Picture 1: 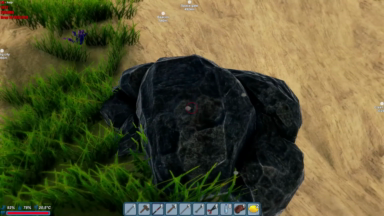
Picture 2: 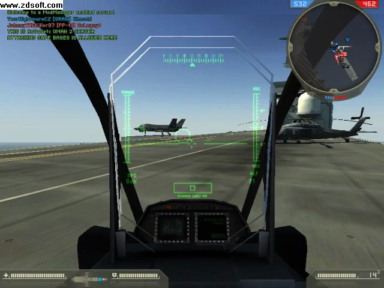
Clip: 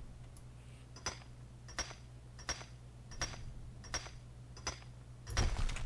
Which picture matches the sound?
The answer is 1